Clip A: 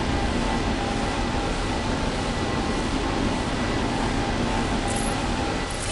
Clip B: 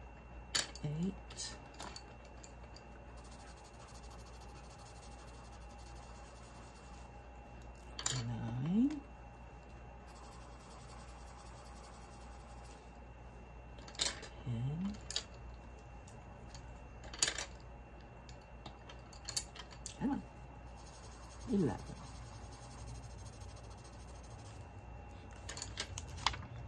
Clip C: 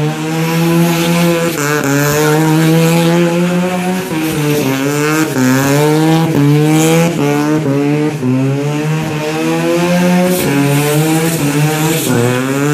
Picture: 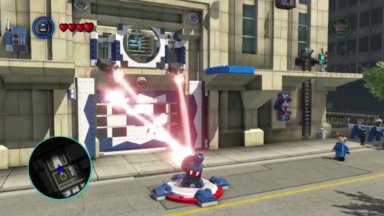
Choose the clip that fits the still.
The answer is A